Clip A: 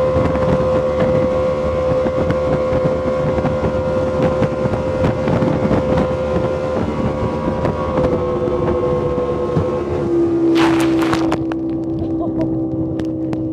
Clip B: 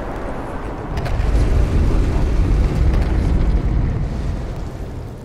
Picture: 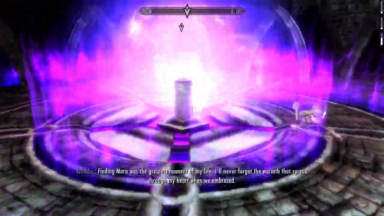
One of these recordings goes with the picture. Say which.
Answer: B